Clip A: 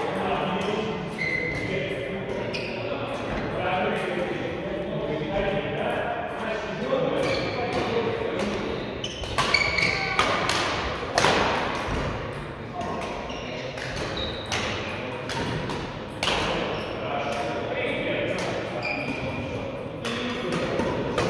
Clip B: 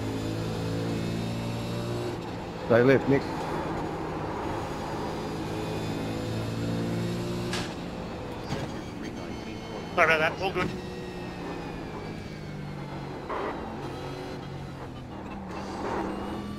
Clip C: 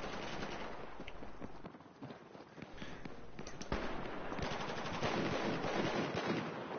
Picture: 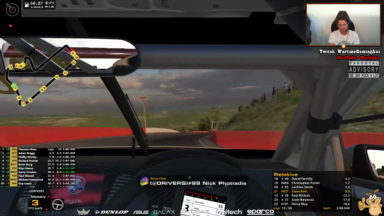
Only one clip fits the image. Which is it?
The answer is B